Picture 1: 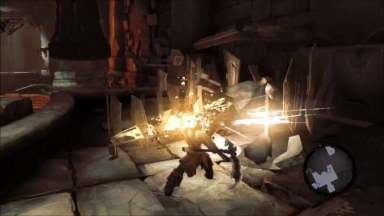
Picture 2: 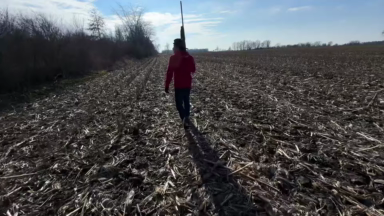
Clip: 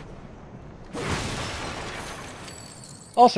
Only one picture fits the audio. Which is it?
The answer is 1